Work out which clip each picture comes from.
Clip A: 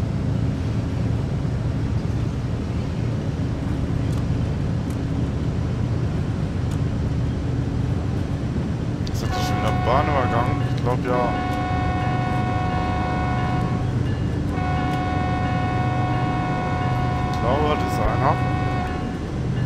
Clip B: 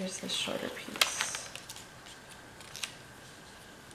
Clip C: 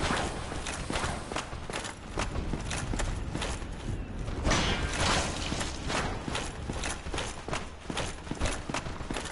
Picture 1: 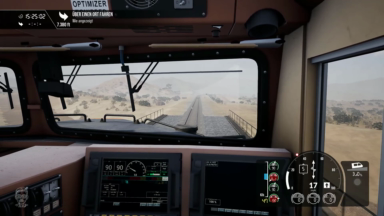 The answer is A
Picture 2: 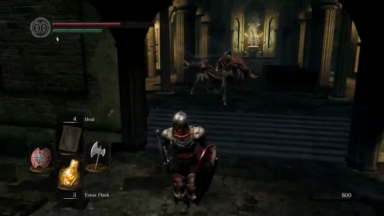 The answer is C